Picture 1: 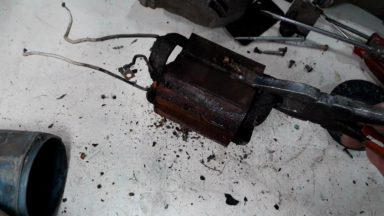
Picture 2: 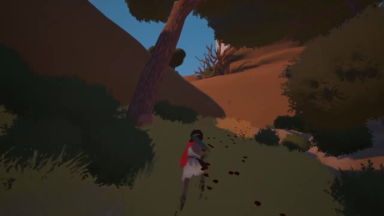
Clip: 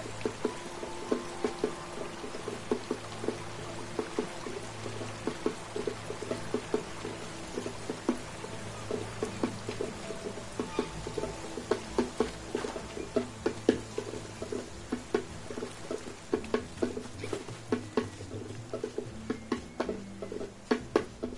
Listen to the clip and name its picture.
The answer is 2